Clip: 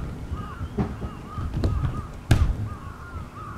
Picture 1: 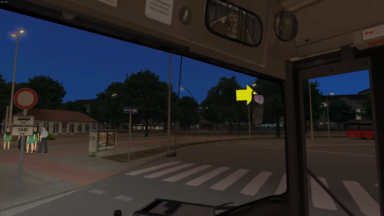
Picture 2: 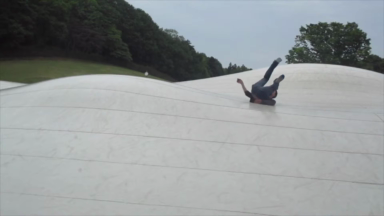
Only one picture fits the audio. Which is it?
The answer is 2